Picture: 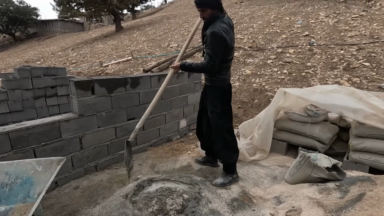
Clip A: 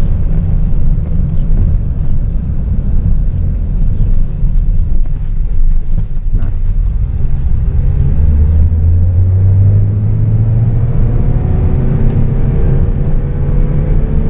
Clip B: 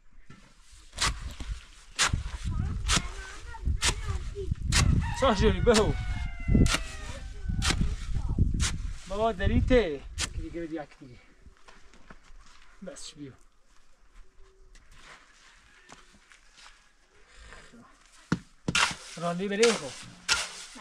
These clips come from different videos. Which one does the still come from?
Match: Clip B